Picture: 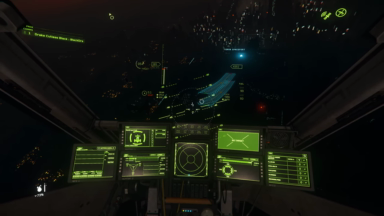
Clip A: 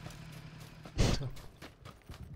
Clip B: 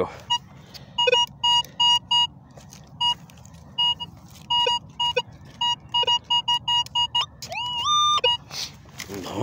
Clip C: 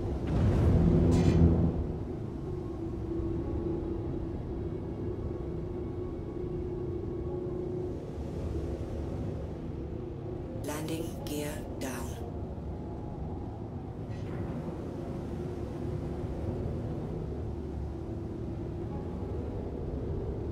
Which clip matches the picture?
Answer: C